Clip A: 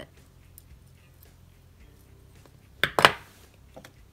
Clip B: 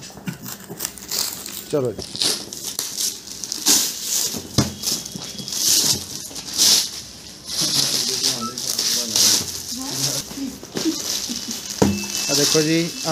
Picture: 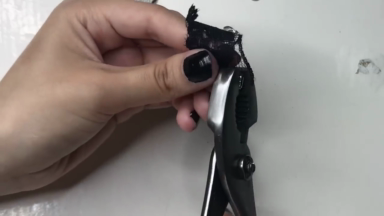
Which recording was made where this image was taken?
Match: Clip A